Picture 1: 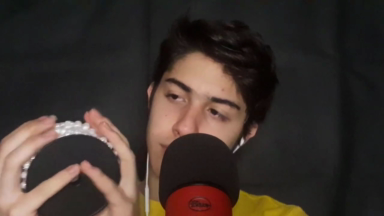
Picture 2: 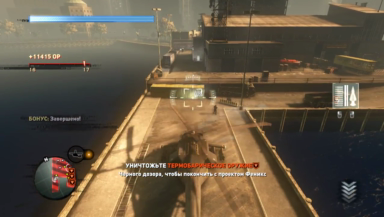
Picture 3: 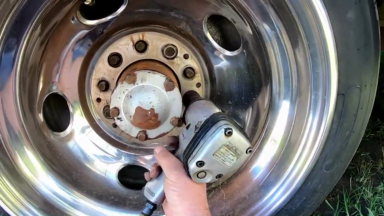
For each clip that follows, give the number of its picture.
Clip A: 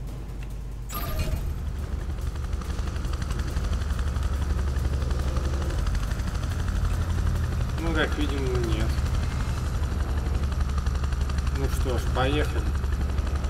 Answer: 2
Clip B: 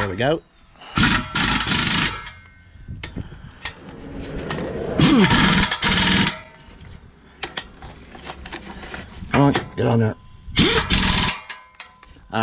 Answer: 3